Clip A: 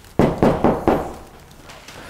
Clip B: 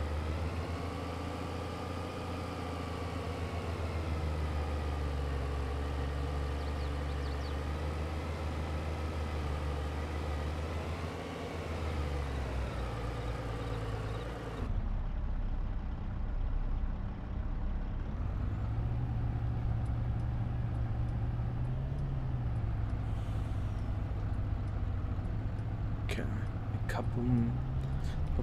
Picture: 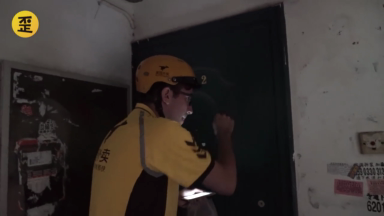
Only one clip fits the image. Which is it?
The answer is A